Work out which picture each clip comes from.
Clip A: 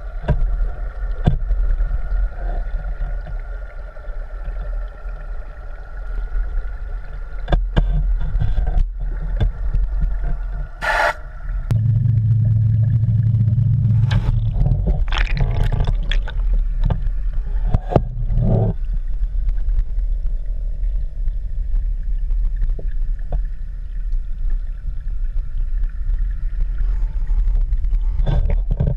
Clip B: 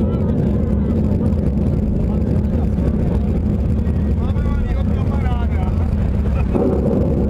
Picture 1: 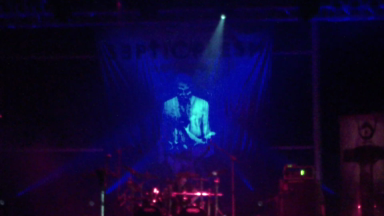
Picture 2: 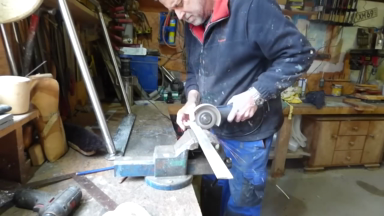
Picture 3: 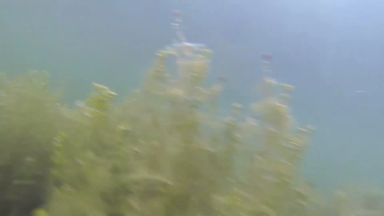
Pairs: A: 3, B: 1